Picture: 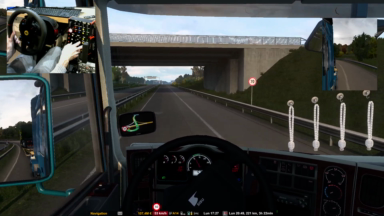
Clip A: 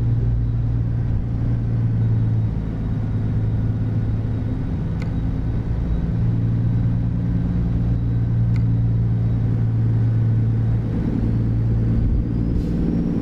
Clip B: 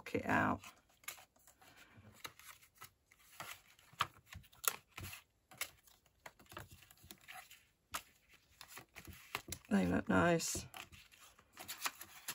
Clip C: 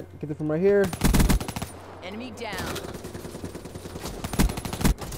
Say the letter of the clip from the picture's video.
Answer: A